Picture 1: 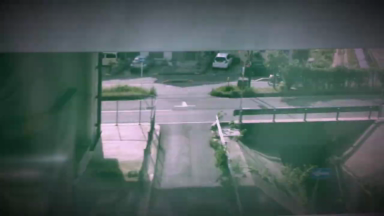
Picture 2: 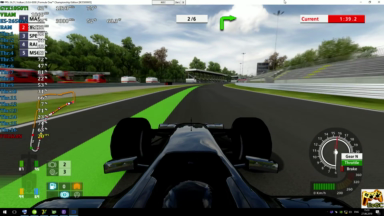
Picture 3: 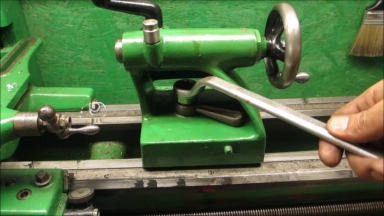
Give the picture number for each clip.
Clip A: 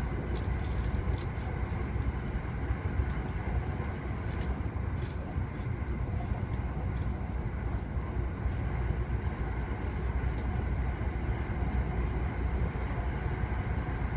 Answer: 1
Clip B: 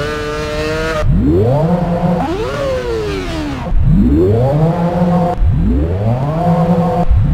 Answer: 2